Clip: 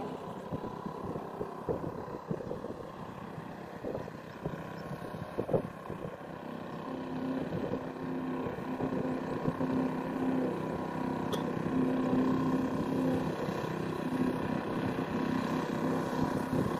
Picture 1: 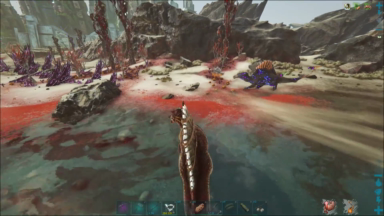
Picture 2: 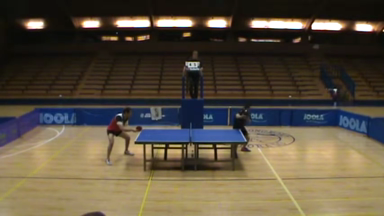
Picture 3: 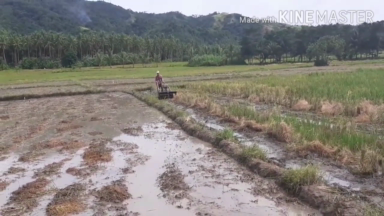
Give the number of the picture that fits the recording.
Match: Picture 3